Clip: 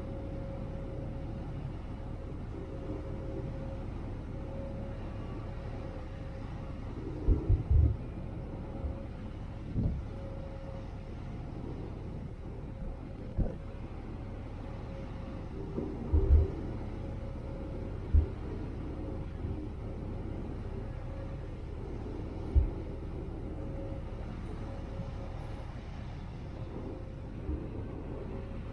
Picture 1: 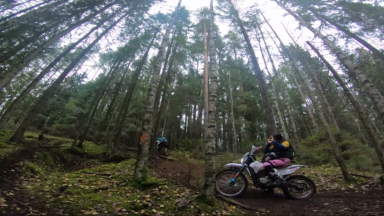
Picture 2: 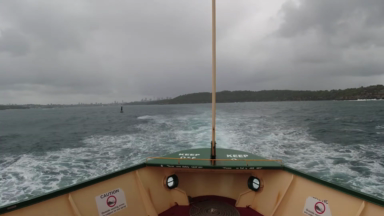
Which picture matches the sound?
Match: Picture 2